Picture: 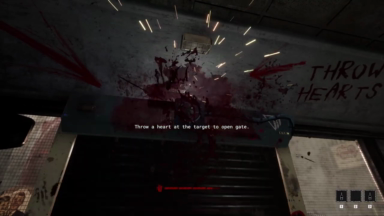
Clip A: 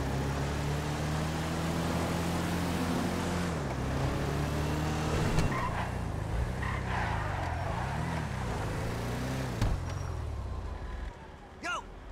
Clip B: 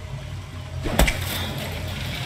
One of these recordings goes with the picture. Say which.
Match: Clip B